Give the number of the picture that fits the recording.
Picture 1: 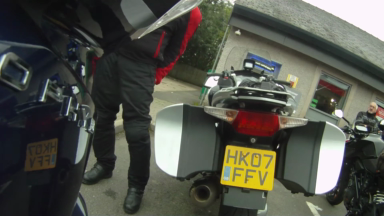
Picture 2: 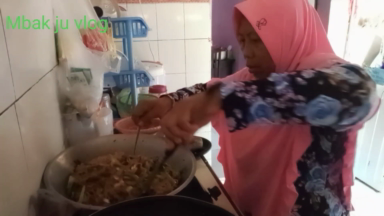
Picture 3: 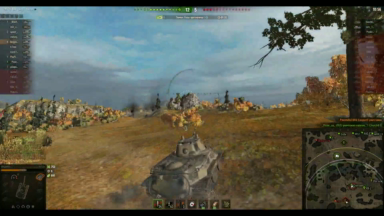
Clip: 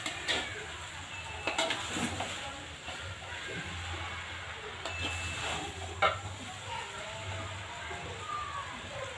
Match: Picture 2